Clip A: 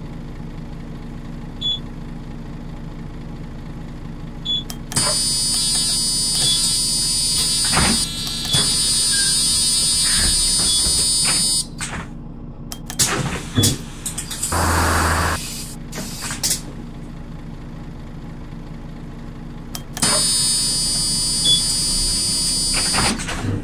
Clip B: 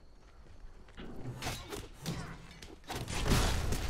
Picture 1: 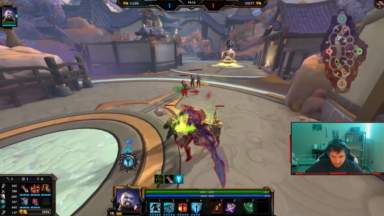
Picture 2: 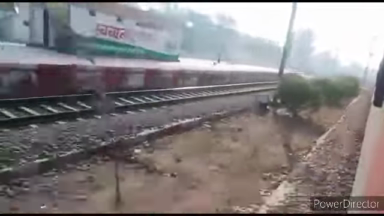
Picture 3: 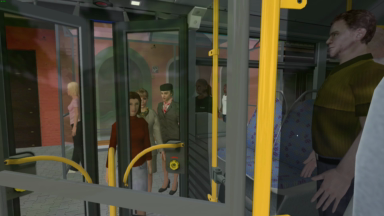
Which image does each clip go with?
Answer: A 3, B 1